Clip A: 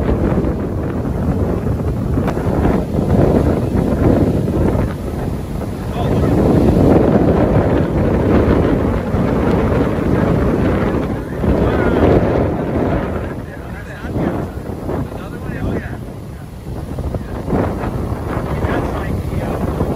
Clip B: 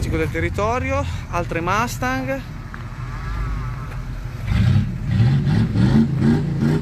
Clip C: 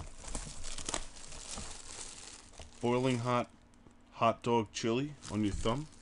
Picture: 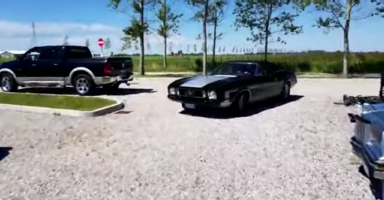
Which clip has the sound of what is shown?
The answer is B